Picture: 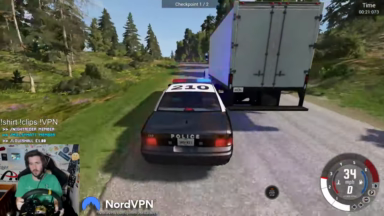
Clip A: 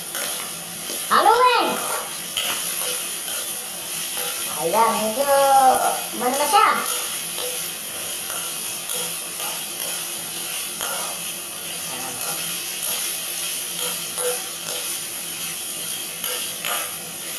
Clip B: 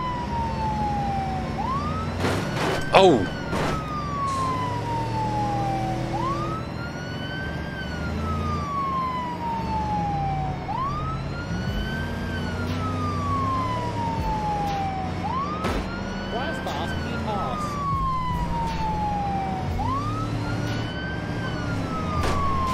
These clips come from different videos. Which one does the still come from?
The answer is B